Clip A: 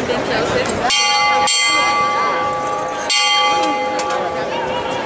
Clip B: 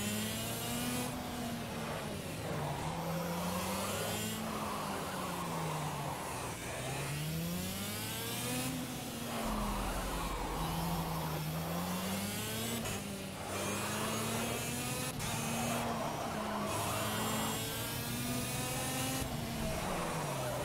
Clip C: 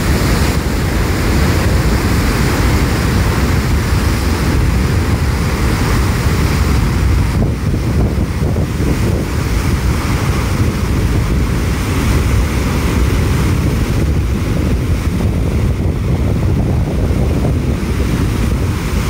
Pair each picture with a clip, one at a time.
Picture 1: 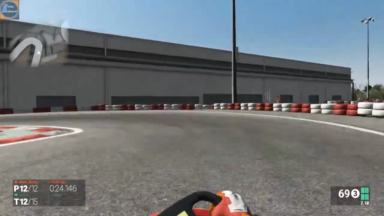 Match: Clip B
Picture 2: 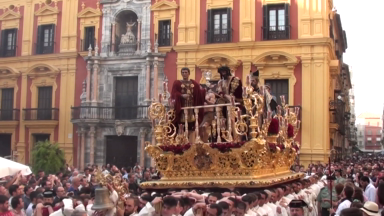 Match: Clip A